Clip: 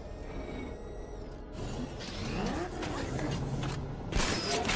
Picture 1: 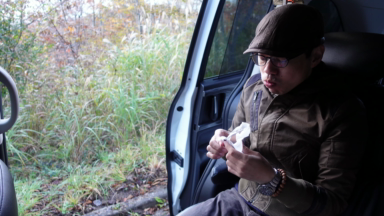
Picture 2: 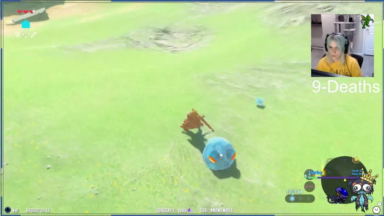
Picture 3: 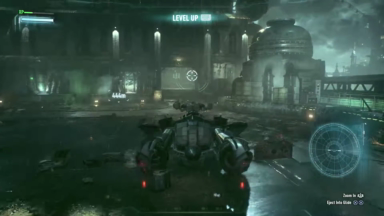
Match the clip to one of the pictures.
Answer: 3